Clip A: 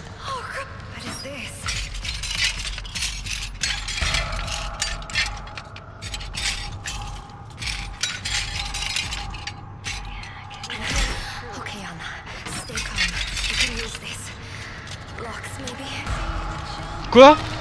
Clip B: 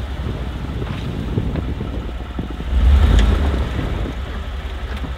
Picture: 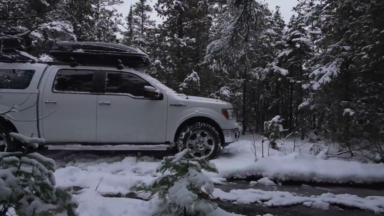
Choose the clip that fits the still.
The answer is B